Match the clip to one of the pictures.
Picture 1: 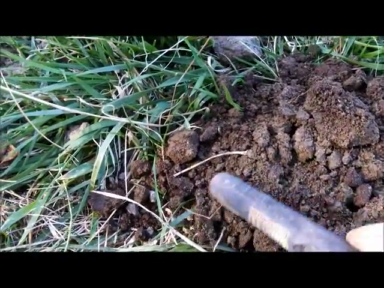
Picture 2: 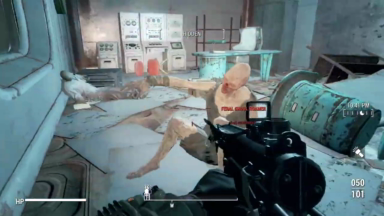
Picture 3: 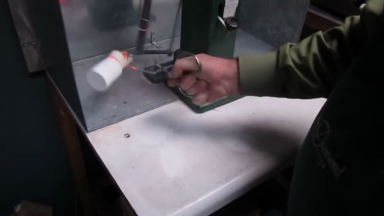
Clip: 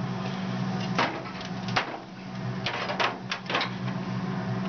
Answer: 3